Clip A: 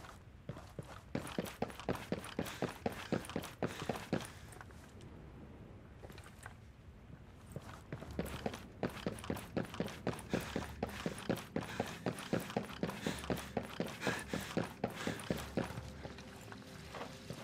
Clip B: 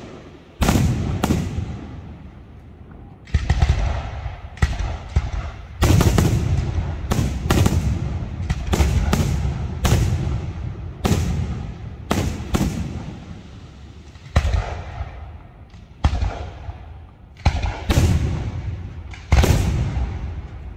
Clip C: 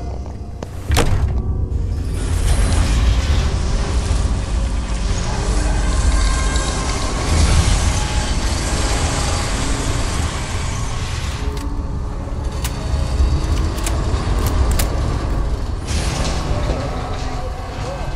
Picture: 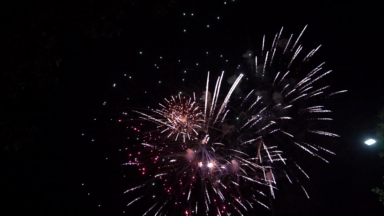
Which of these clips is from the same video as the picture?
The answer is B